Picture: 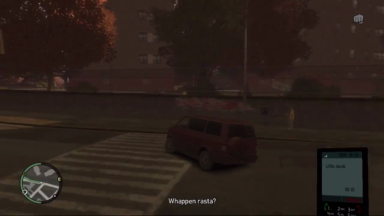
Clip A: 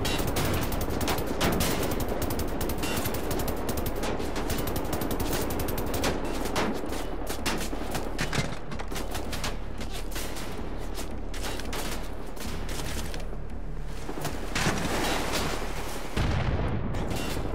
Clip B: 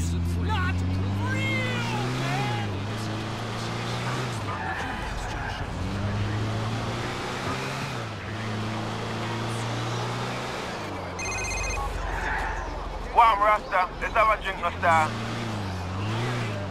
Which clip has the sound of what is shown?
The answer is B